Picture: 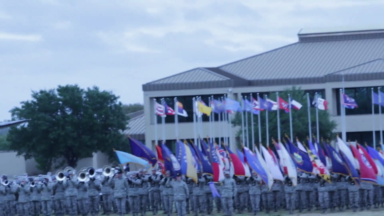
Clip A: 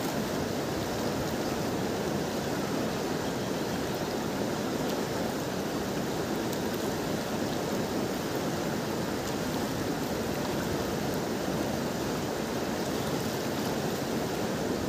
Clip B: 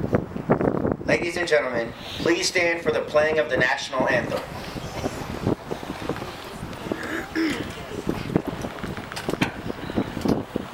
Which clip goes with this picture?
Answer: B